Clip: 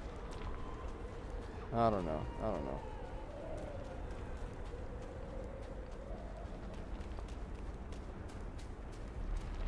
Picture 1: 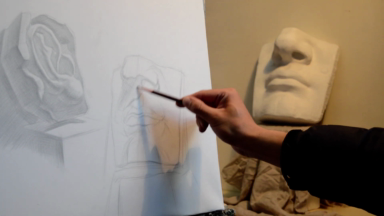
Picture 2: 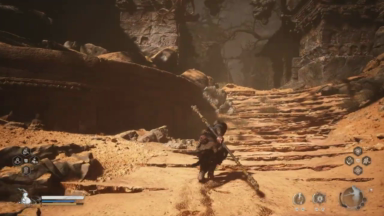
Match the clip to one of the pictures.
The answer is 2